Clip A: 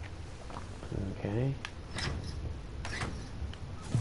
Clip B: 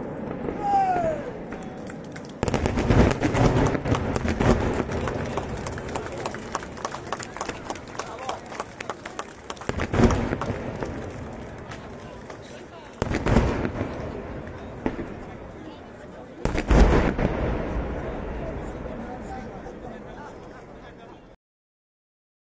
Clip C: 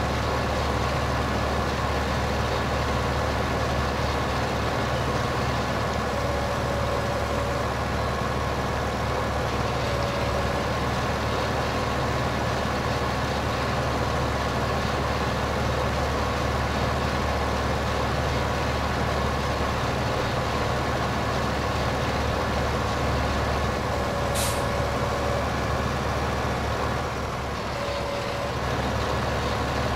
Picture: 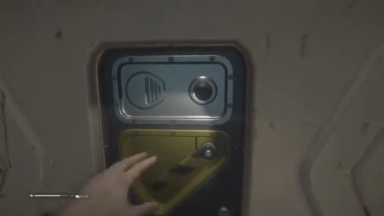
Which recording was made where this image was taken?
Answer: A